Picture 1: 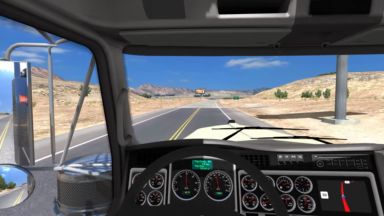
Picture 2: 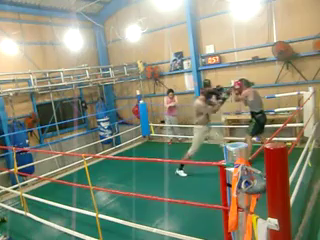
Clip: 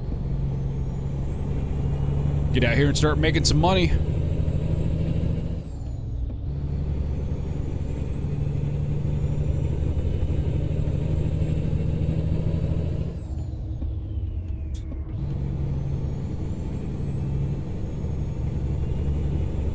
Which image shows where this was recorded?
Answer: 1